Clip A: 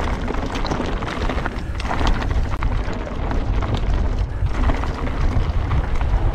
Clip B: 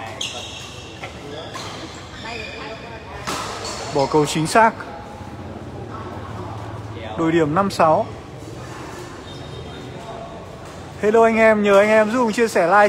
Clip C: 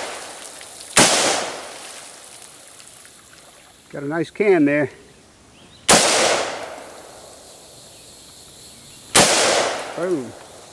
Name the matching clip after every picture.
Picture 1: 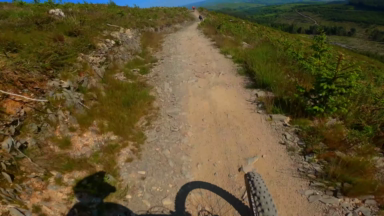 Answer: A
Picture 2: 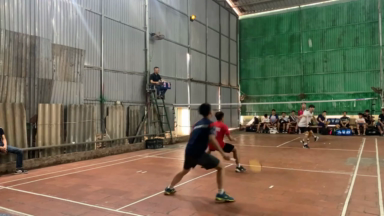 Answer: B